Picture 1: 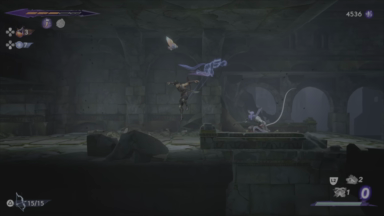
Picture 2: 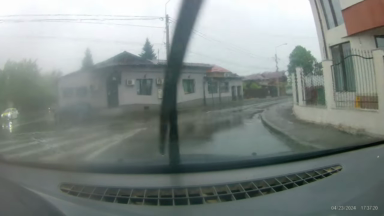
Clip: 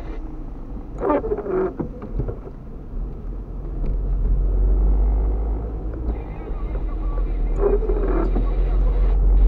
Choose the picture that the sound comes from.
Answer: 2